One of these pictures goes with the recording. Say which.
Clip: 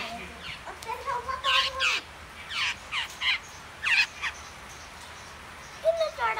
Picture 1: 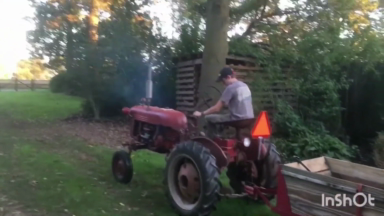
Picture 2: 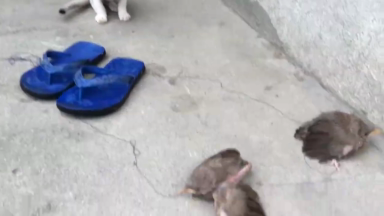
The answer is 2